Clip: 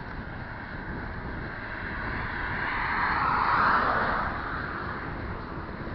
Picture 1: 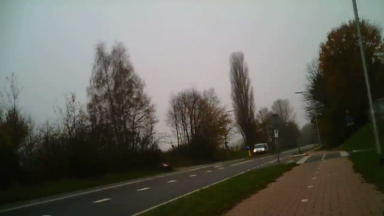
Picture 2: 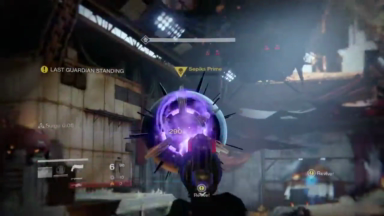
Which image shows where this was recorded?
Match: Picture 1